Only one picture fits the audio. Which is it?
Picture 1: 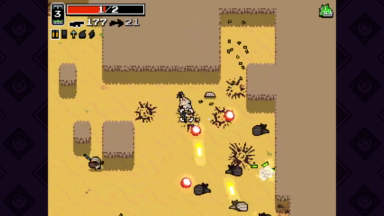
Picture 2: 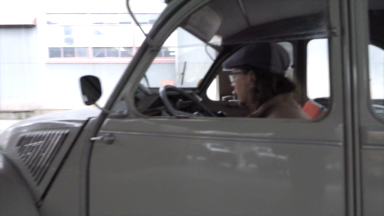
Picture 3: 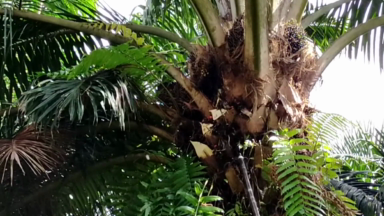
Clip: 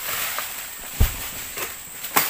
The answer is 3